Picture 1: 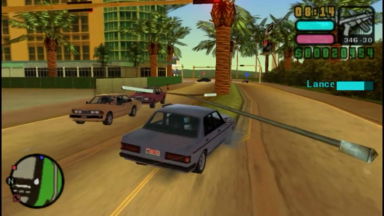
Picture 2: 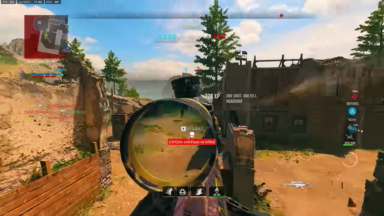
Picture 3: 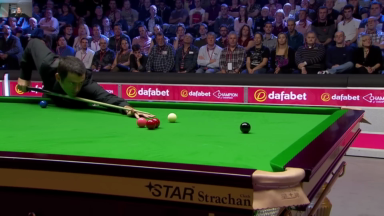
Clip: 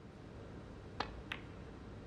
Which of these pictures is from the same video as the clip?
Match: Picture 3